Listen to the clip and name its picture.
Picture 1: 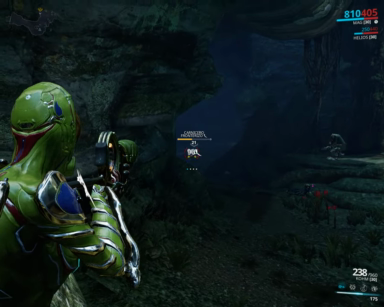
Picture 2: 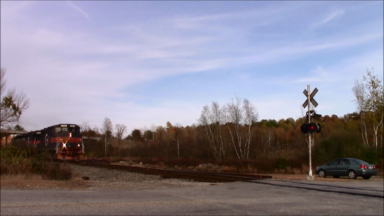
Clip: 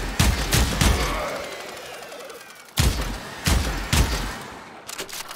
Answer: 1